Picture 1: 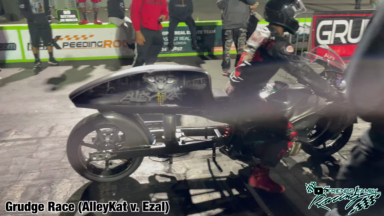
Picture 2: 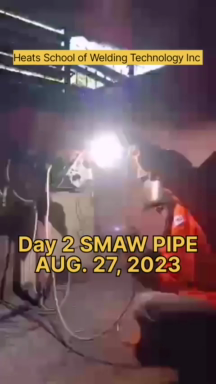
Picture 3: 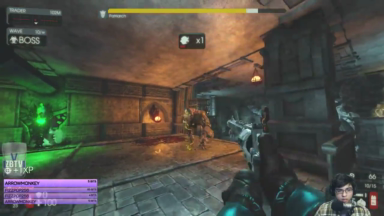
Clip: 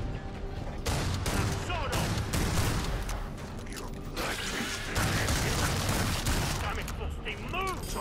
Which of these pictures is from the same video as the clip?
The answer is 3